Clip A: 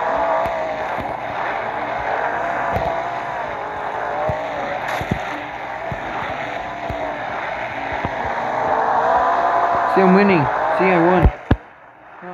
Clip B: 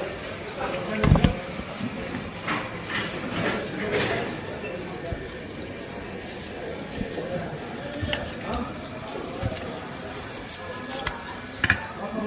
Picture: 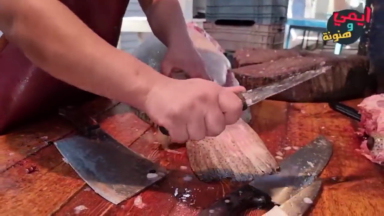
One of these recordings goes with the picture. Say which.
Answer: B